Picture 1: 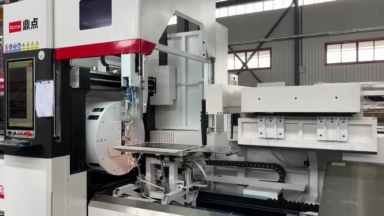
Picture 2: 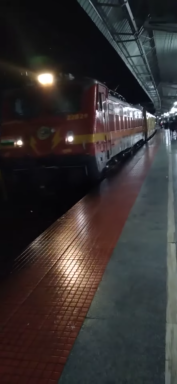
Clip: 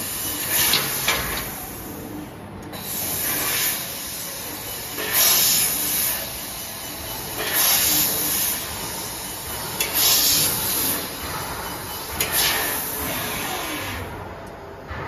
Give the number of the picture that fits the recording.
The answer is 1